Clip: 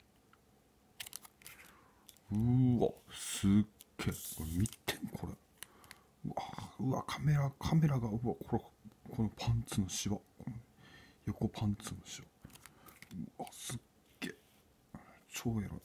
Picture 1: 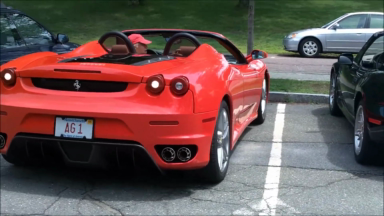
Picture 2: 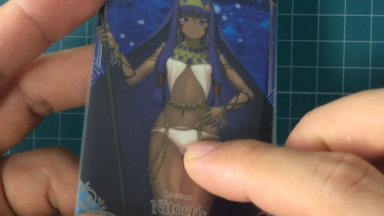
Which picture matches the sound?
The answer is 2